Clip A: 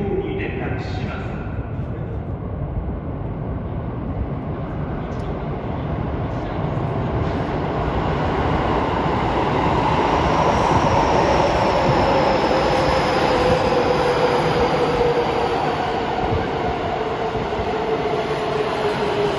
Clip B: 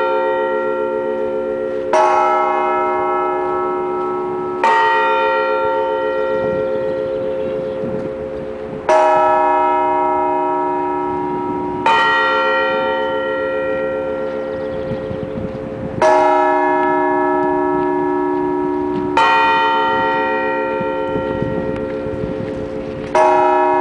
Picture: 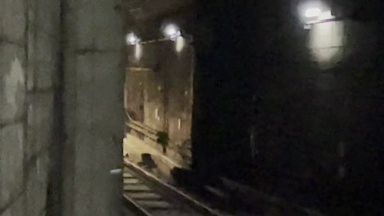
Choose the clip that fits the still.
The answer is A